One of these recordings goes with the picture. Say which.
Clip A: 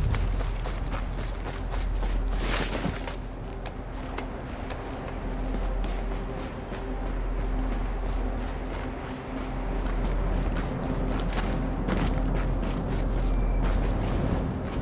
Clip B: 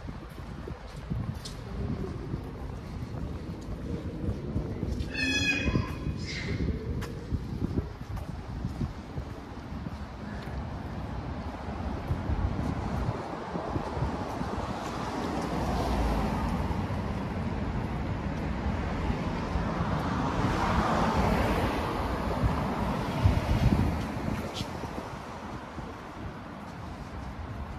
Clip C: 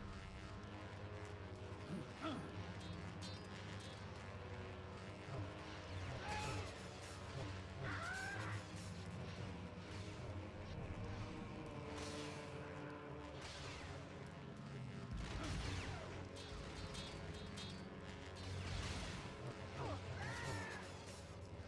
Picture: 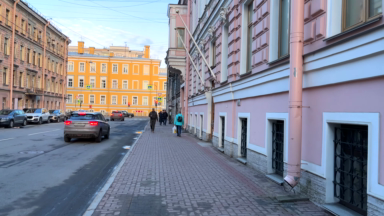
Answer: B